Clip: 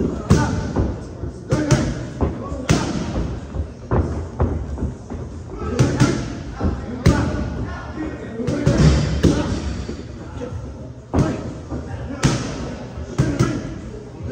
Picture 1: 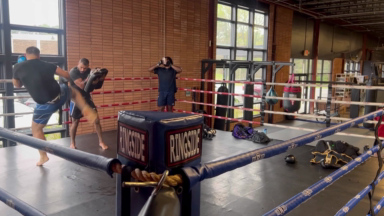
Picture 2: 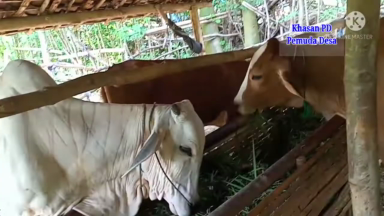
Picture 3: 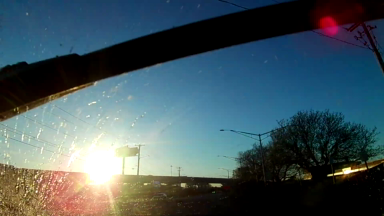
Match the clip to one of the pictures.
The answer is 1